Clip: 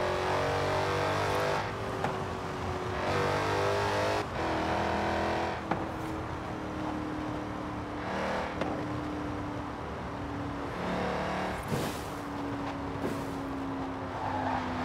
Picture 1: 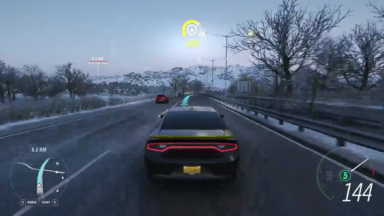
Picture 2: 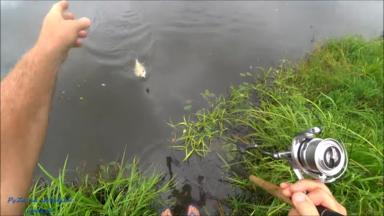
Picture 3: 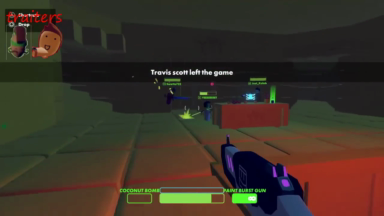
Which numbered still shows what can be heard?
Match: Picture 1